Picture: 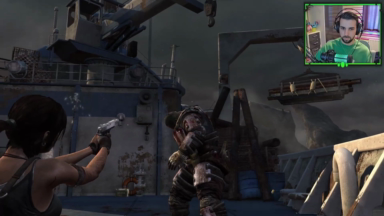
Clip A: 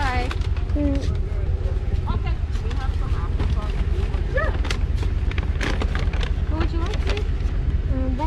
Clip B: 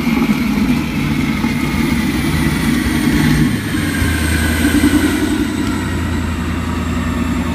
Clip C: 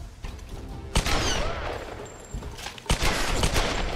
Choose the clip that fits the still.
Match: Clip C